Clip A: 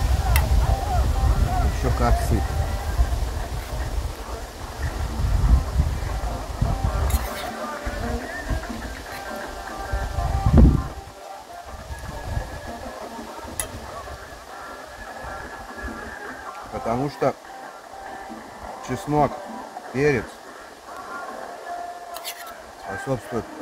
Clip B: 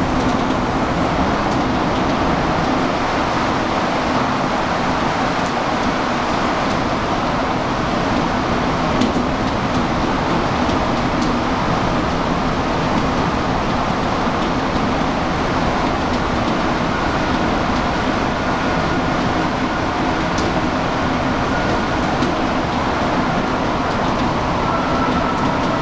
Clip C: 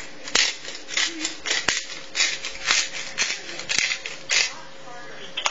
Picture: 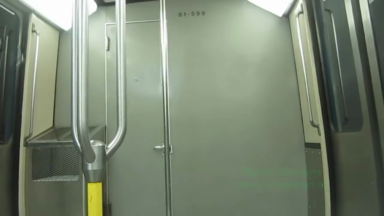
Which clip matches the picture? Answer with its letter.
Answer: B